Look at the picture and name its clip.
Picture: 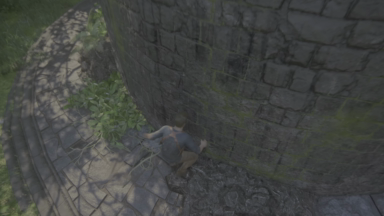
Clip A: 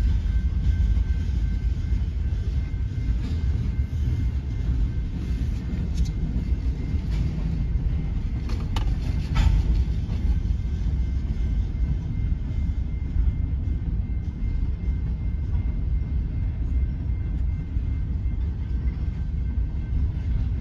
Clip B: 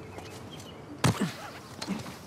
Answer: B